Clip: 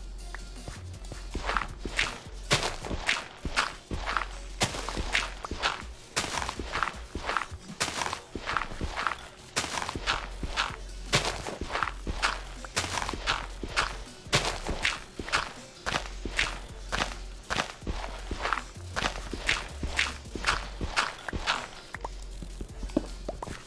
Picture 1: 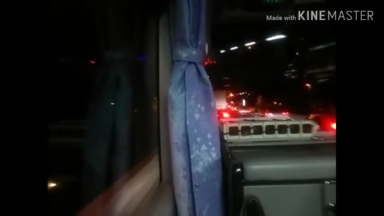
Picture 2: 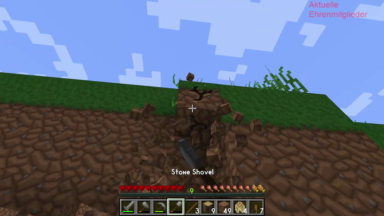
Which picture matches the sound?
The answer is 2